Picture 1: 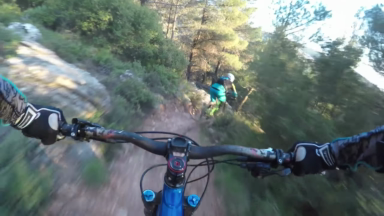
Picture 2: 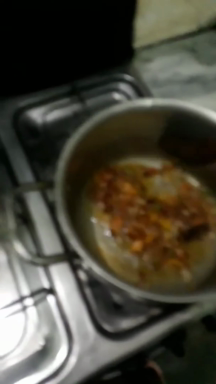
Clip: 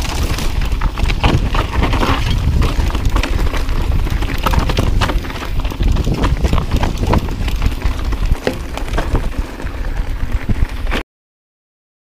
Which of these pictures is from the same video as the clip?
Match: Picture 1